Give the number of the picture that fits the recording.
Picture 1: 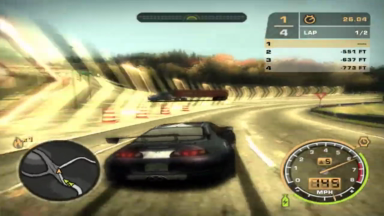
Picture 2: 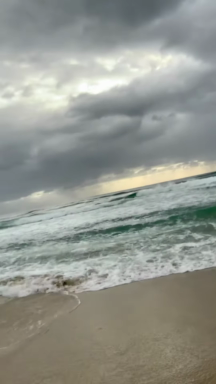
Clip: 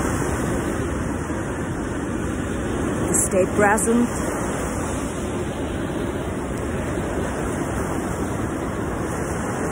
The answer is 2